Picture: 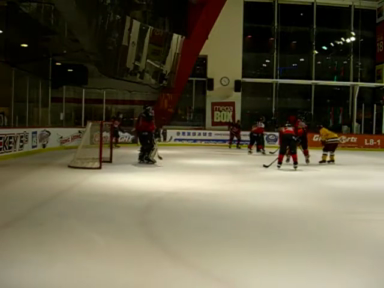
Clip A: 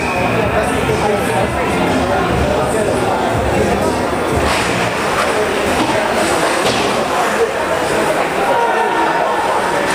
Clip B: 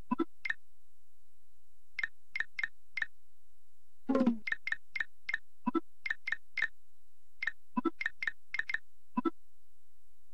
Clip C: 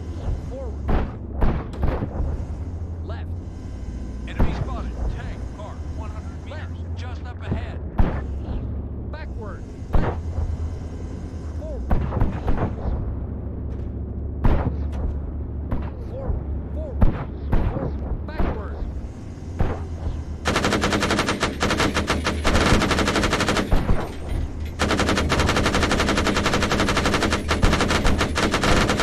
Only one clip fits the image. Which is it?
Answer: A